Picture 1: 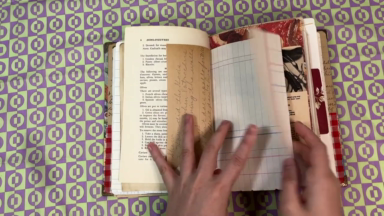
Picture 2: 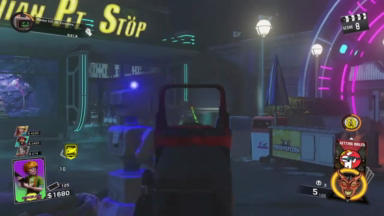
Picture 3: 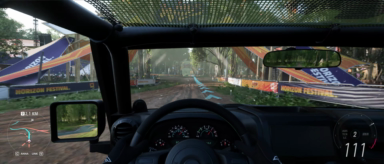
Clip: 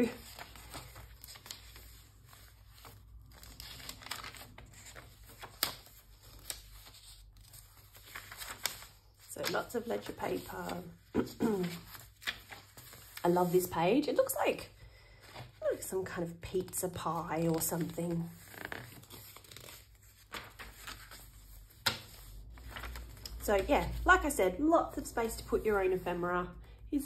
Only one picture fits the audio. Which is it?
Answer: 1